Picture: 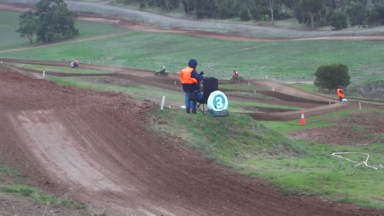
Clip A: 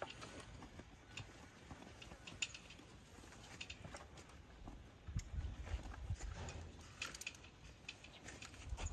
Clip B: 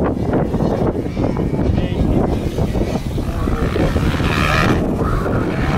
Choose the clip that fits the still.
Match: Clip B